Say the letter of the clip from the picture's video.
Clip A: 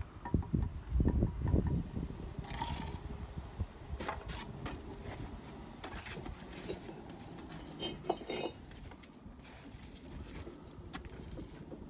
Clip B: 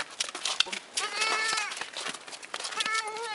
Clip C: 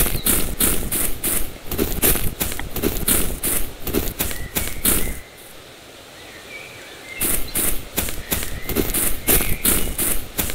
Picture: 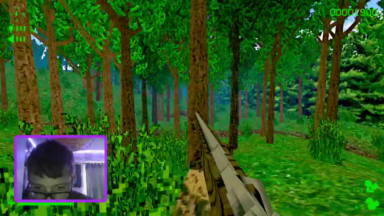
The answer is C